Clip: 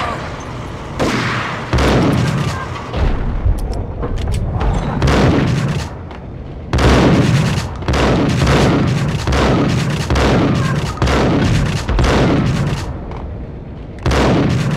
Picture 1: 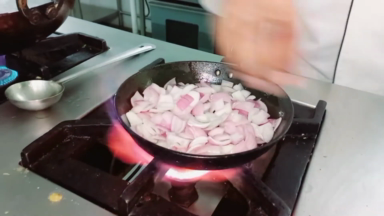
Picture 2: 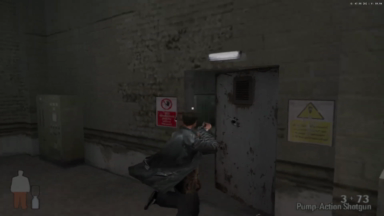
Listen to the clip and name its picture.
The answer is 2